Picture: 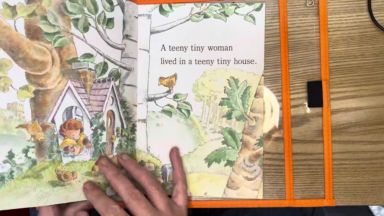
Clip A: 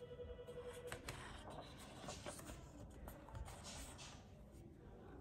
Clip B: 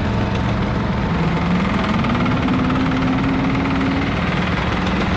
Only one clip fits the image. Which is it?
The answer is A